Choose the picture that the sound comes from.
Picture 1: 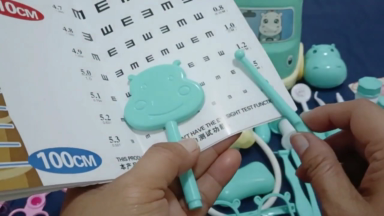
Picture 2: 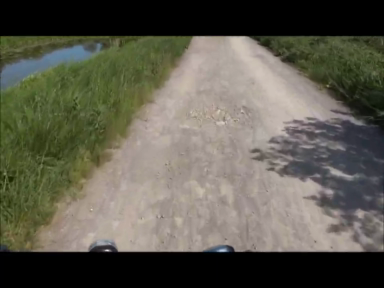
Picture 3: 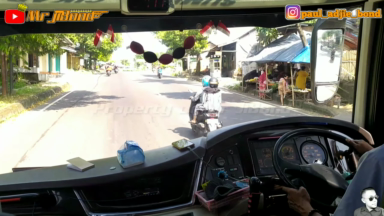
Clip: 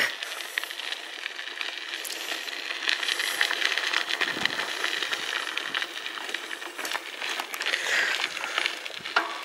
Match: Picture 2